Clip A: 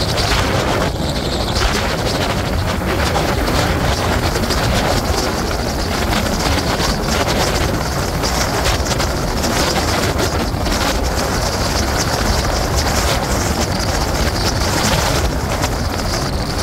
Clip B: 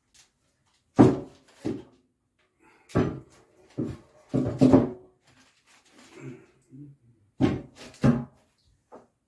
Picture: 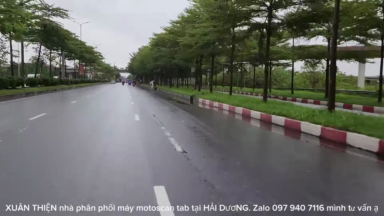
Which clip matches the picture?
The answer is A